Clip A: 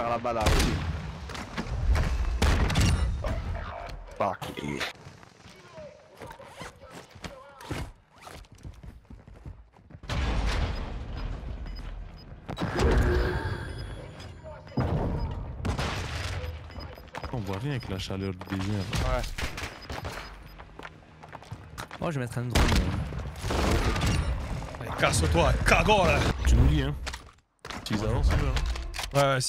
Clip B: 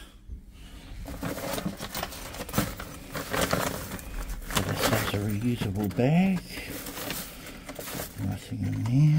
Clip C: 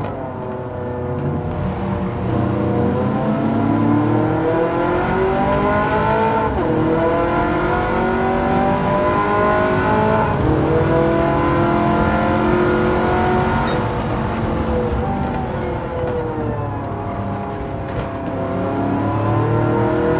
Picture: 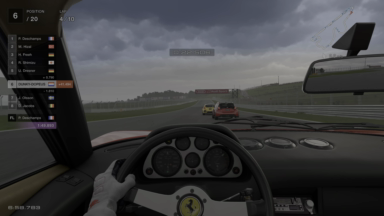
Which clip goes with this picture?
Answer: C